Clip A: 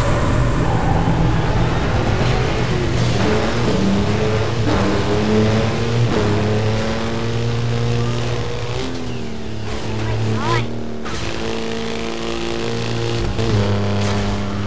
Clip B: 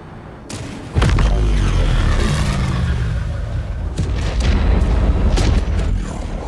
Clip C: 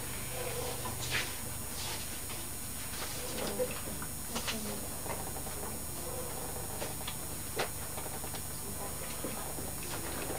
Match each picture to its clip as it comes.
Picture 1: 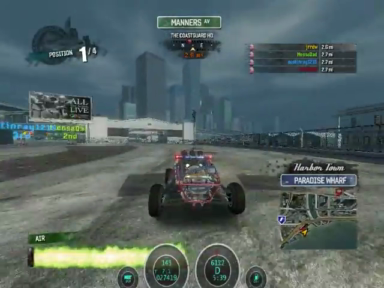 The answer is A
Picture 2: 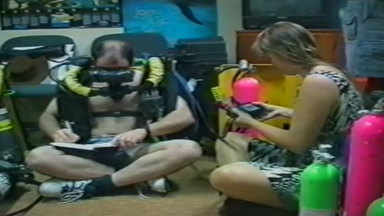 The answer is C